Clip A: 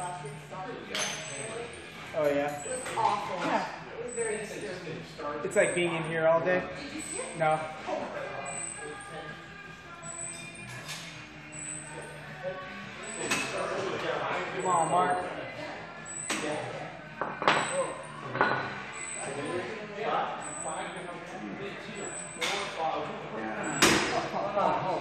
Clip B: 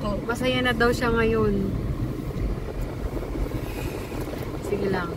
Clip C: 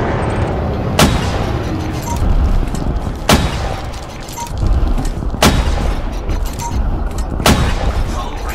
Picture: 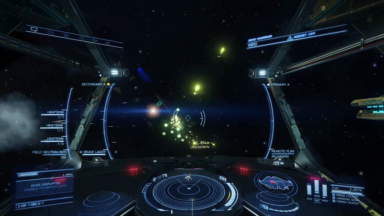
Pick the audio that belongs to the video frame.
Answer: C